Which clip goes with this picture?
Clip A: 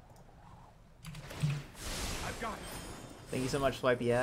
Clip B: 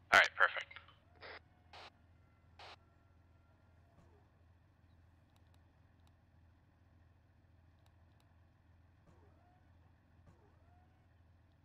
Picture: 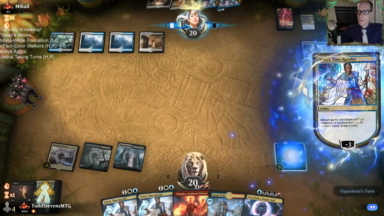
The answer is A